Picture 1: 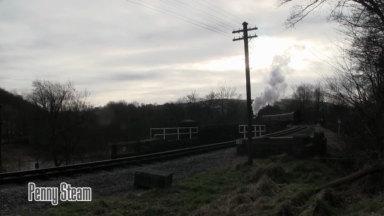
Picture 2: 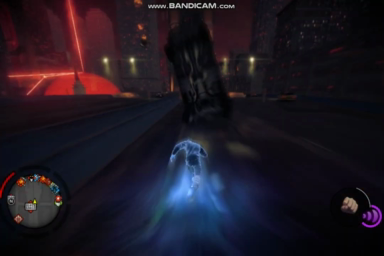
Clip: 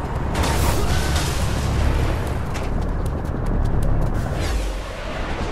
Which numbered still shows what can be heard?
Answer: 2